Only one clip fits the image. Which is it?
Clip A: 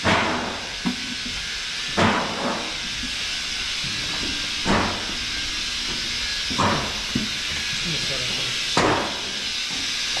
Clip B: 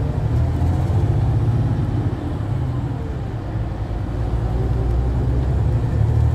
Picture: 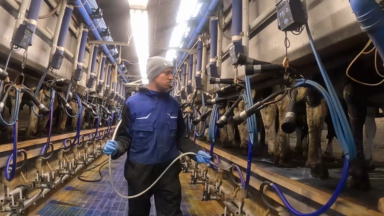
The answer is A